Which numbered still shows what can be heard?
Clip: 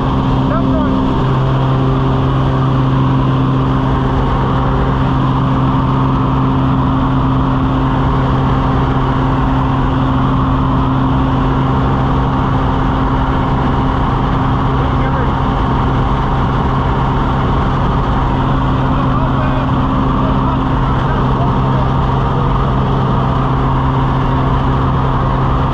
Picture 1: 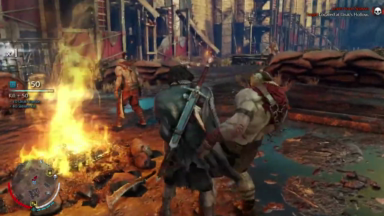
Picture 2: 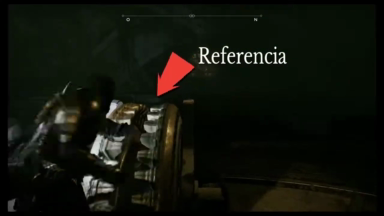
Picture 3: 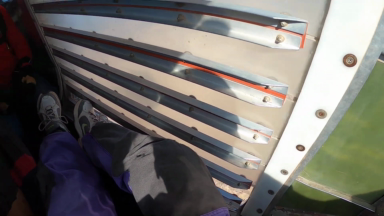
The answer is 3